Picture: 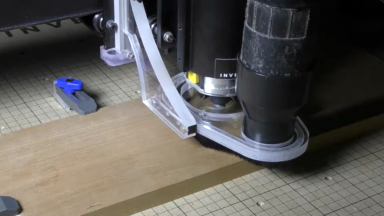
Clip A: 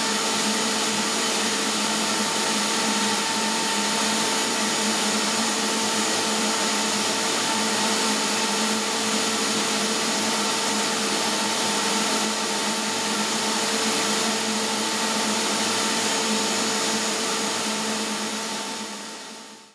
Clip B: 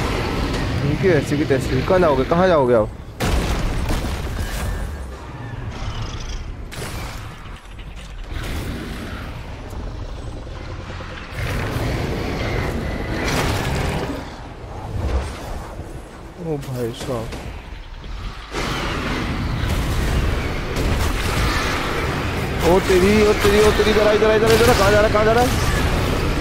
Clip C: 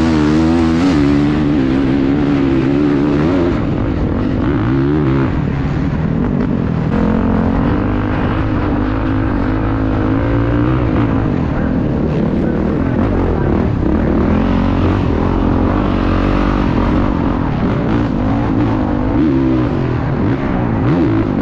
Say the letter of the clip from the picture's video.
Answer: A